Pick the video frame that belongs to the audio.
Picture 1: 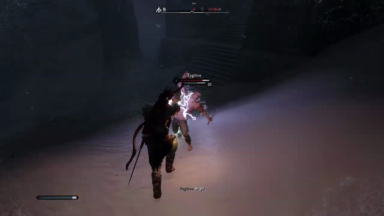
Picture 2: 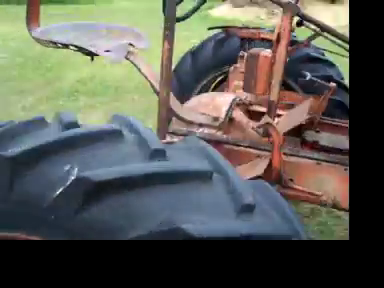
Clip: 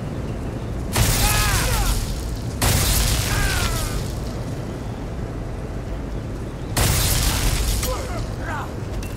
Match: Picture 1